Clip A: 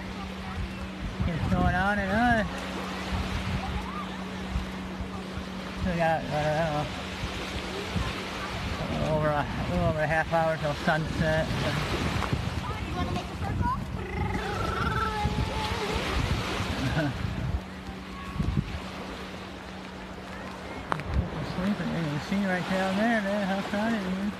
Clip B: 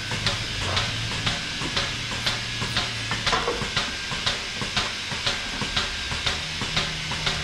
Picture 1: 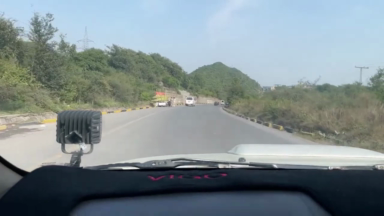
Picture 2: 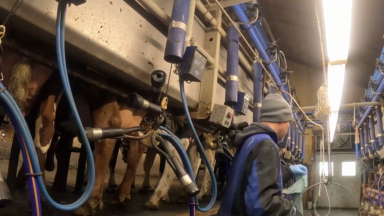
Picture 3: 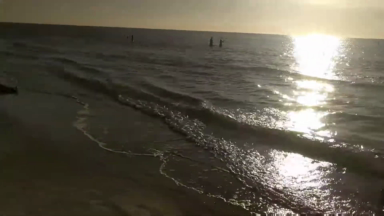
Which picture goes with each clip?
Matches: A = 3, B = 2